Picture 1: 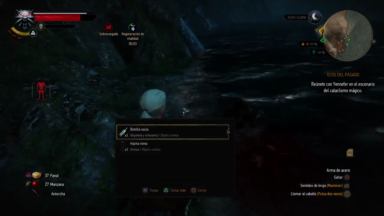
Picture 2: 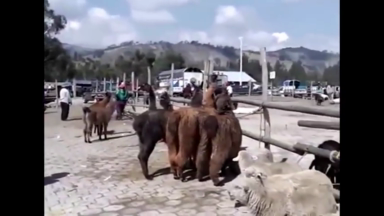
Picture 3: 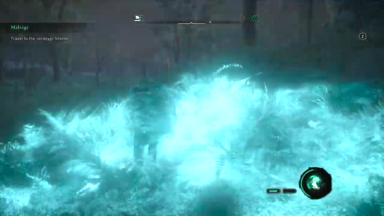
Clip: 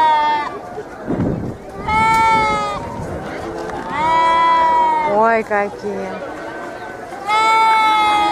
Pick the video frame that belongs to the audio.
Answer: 2